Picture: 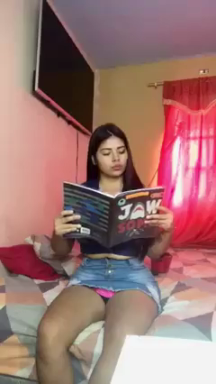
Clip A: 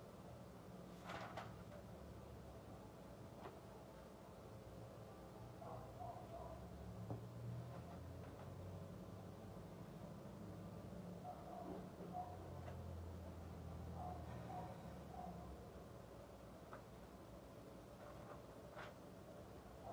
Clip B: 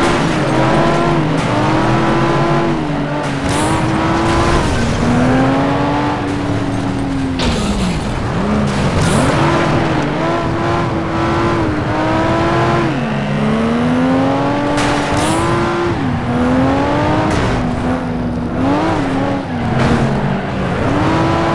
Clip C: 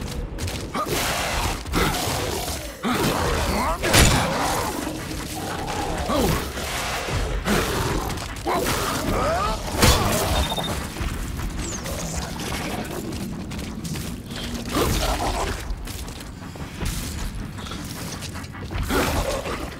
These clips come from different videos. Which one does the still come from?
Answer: A